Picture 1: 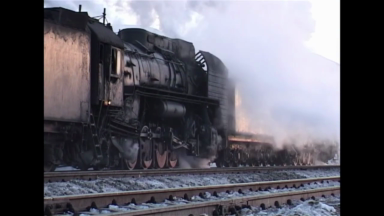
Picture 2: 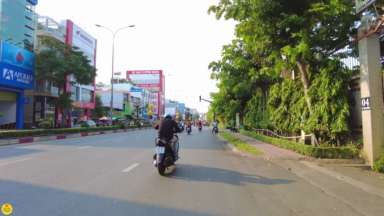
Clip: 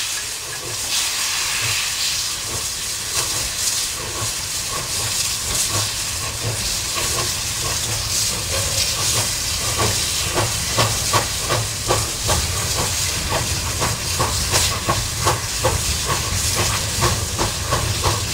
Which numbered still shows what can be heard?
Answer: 1